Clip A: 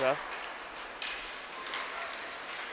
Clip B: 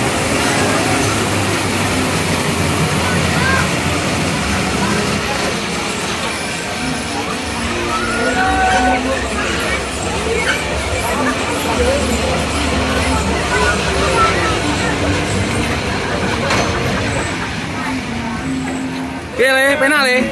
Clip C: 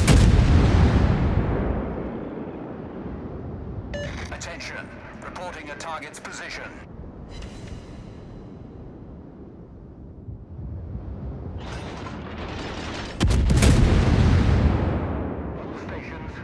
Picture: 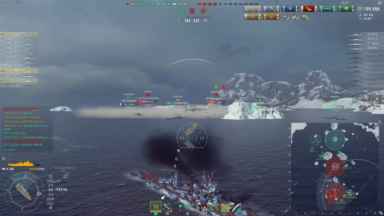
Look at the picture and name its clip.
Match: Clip C